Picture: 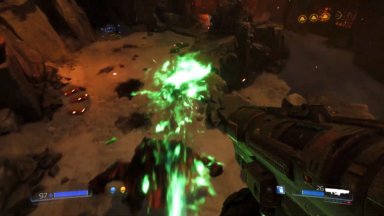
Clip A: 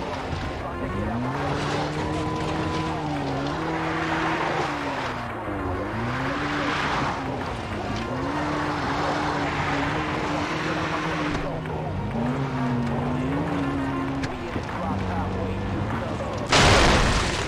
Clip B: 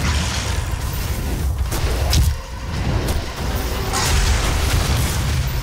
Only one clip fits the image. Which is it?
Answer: B